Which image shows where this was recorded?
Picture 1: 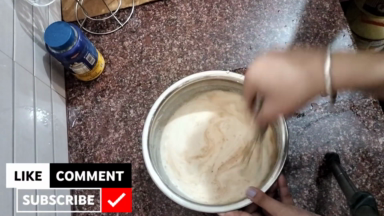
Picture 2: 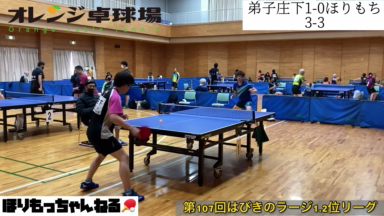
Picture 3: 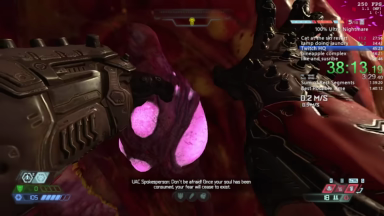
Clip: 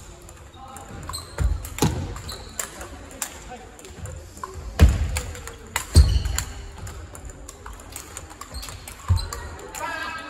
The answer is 2